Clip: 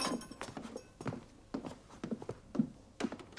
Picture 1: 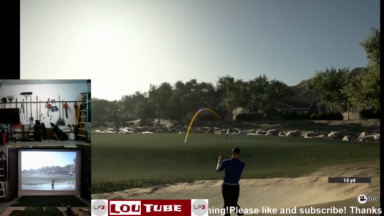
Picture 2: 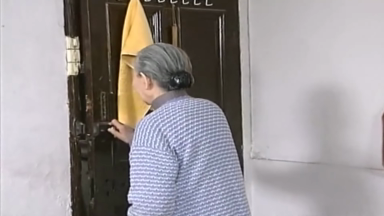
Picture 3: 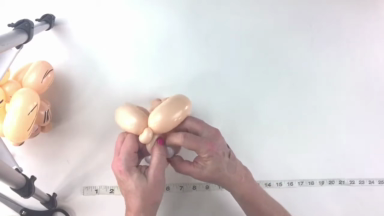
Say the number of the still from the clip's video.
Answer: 2